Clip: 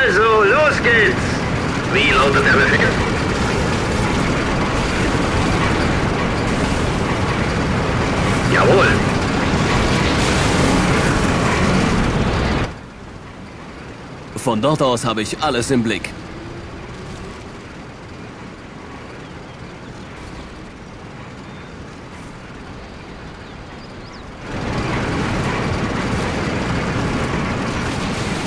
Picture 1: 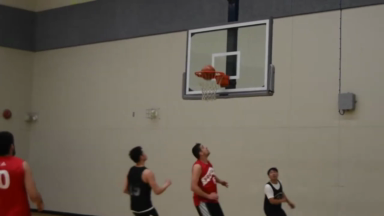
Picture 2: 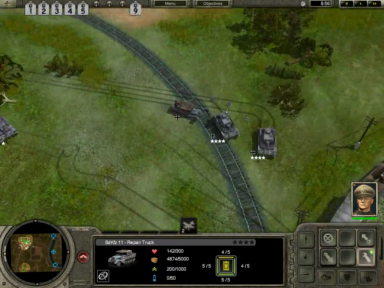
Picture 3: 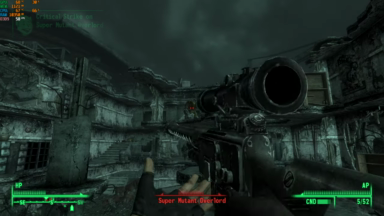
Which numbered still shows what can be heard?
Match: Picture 2